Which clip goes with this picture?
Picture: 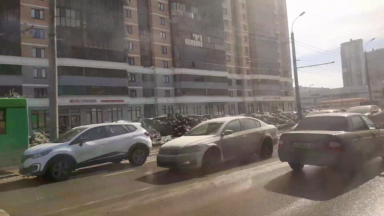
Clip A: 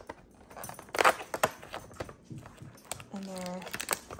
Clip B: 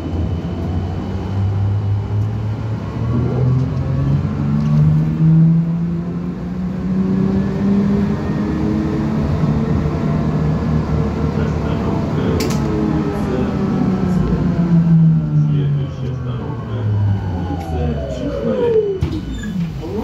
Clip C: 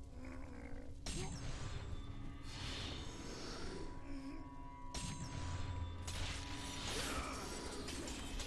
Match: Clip B